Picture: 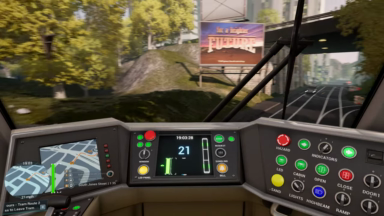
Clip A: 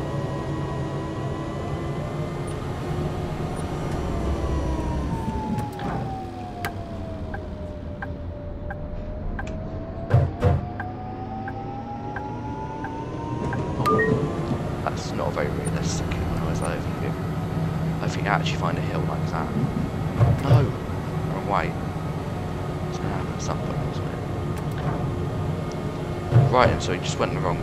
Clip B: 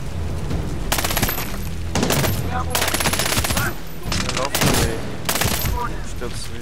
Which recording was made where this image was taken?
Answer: A